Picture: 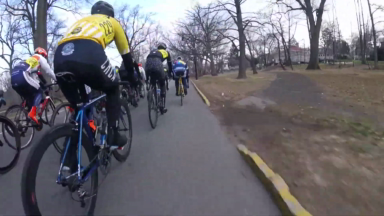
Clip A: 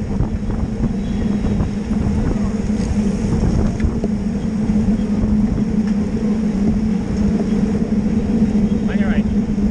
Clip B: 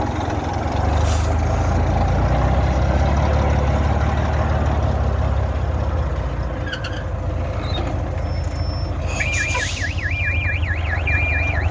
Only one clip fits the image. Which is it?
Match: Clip A